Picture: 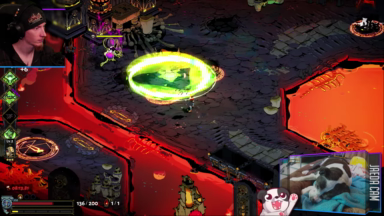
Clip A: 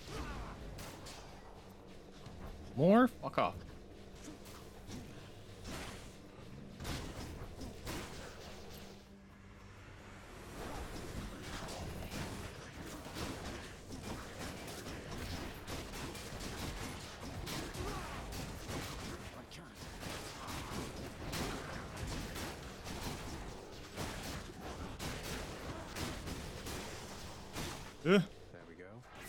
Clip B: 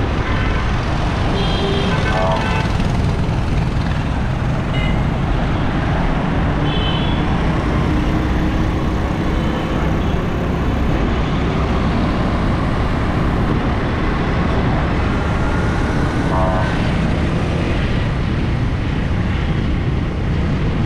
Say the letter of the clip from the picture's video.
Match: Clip A